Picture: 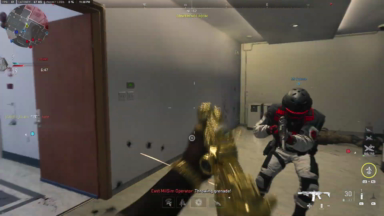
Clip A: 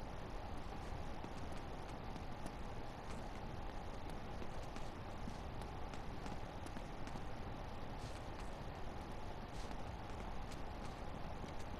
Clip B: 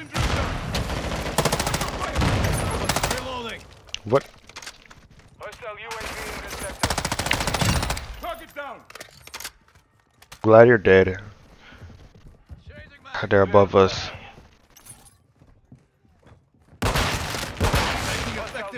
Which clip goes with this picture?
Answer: B